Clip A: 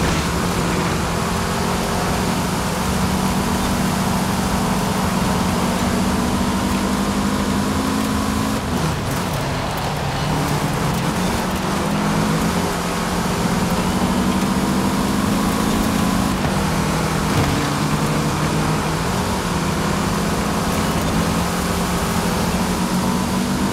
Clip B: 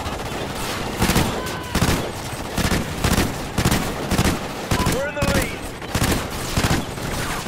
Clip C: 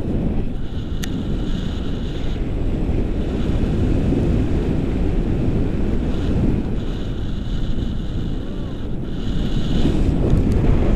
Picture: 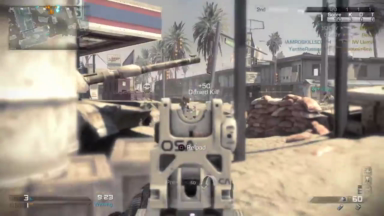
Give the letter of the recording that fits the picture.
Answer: B